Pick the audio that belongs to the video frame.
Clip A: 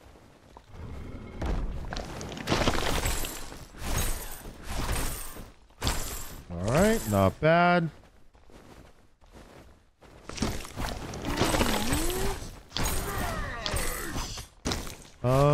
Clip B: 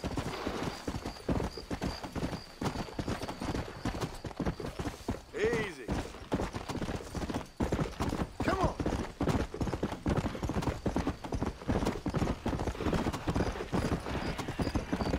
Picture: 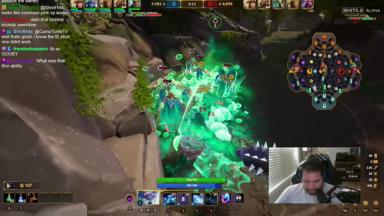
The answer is A